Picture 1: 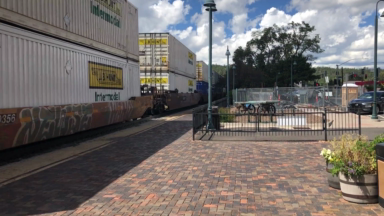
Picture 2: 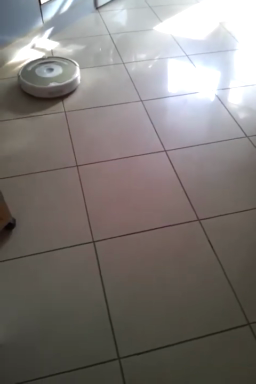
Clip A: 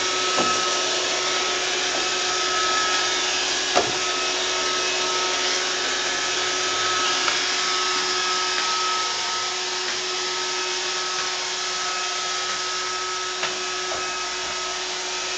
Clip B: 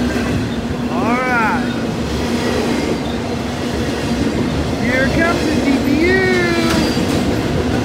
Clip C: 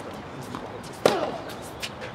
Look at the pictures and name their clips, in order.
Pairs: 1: B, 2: A